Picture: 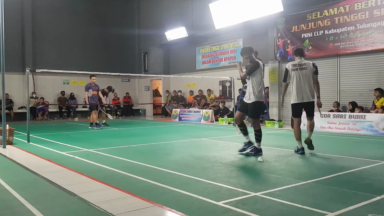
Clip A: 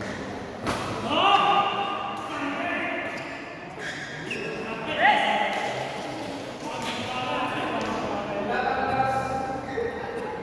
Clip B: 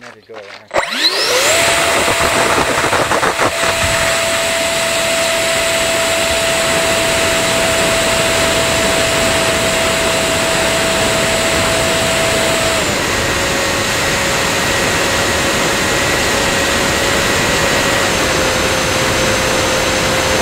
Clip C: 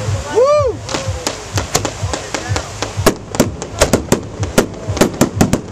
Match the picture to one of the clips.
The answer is A